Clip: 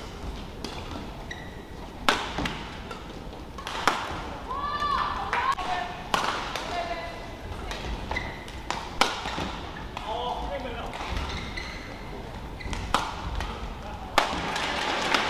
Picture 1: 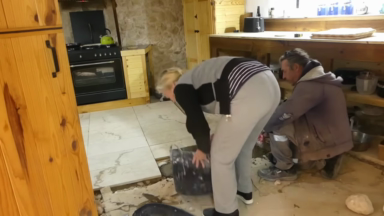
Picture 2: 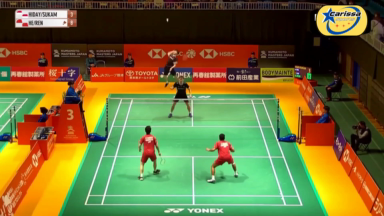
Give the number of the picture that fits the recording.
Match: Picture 2